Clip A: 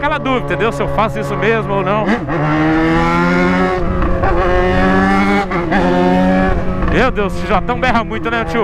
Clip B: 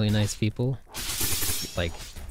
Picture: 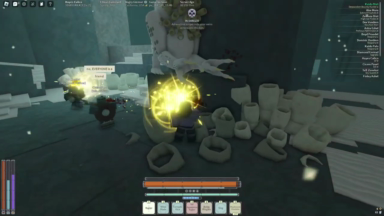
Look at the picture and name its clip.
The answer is B